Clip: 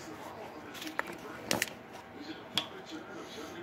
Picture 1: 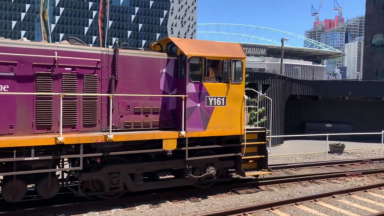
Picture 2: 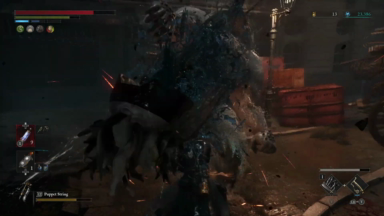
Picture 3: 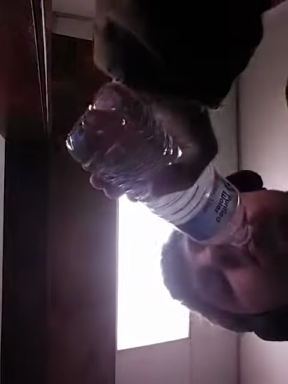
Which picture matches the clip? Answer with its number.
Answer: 3